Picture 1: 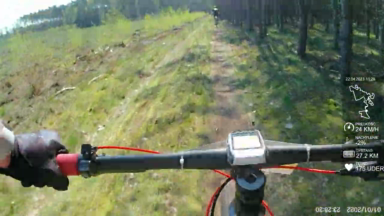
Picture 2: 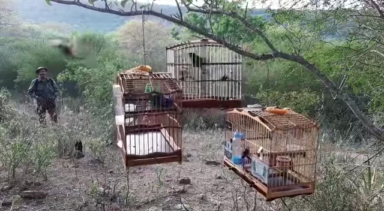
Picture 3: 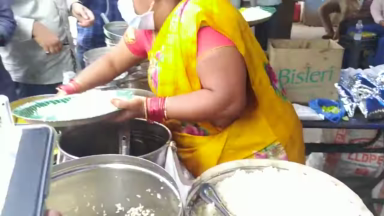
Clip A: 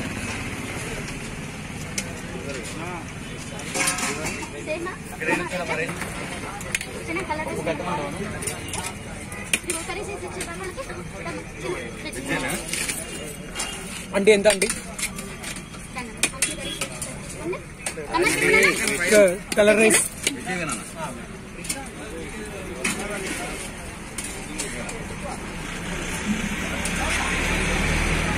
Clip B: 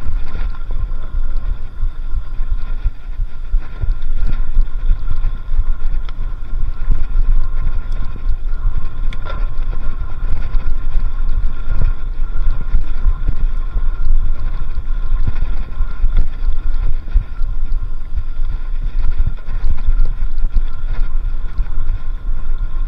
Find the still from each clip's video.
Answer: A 3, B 1